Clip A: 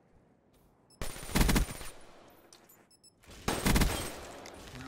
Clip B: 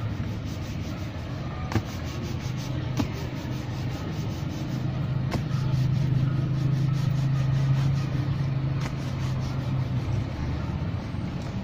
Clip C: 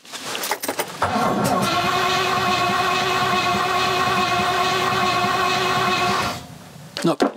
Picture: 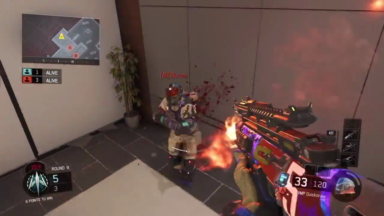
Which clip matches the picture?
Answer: A